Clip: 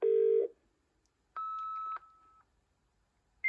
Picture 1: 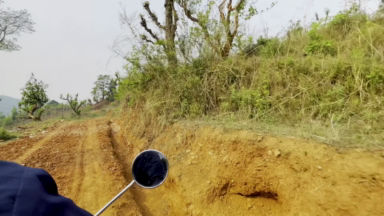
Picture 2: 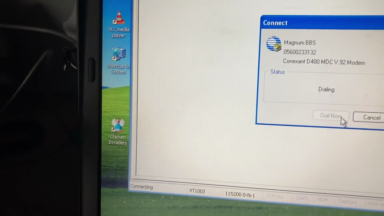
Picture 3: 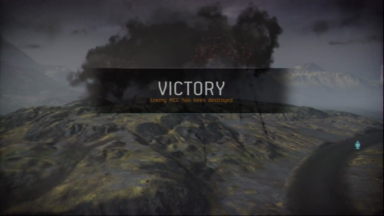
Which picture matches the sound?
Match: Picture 2